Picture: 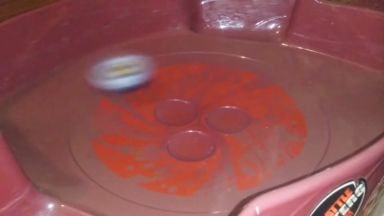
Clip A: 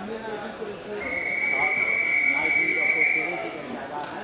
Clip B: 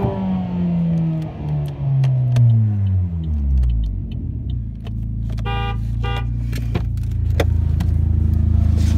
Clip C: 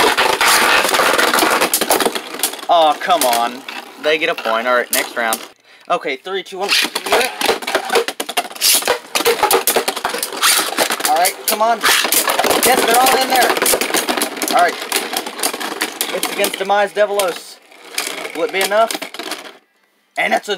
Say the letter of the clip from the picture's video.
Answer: C